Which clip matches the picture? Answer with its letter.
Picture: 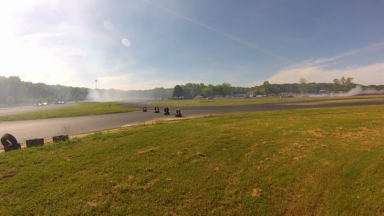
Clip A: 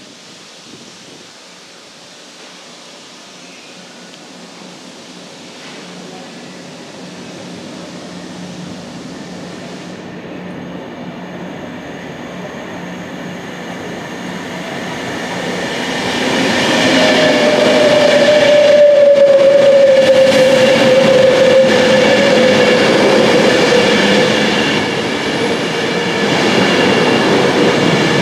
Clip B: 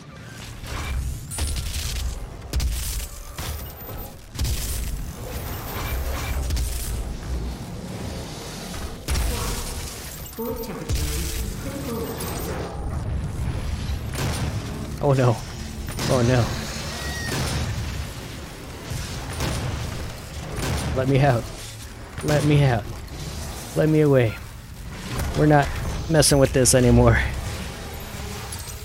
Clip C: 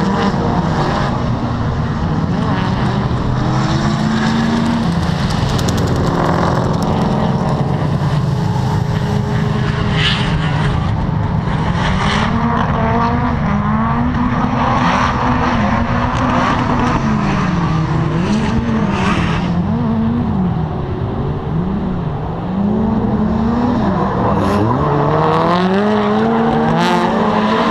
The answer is C